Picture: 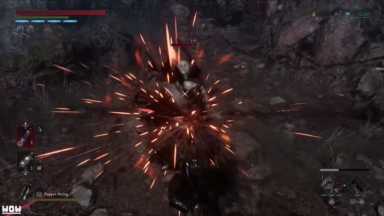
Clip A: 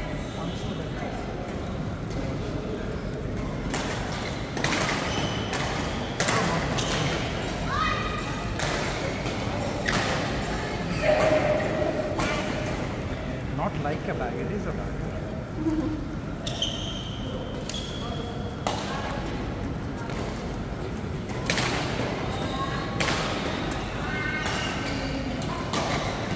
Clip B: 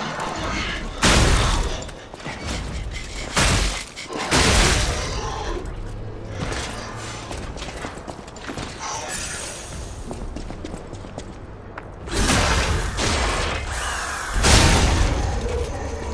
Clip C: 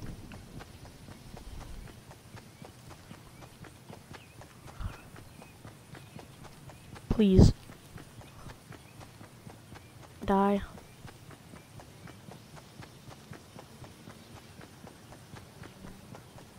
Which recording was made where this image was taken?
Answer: B